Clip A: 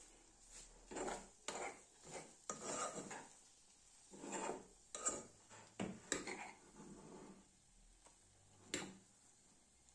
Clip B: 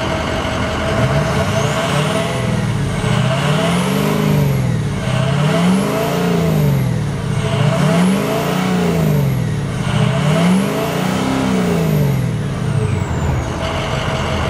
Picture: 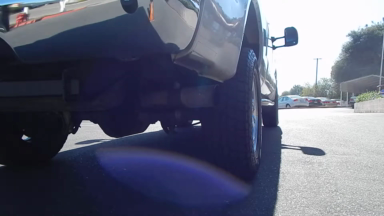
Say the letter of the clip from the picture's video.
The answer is B